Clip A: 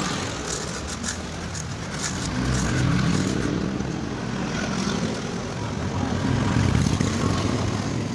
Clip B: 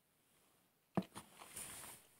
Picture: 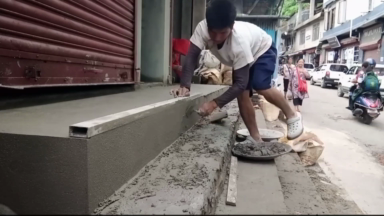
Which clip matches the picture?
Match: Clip A